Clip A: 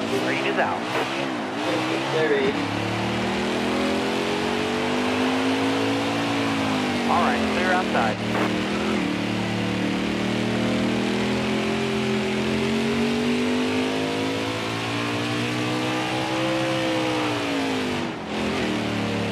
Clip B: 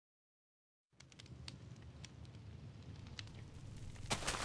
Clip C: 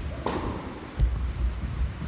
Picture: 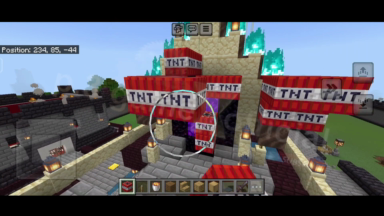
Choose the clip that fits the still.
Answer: B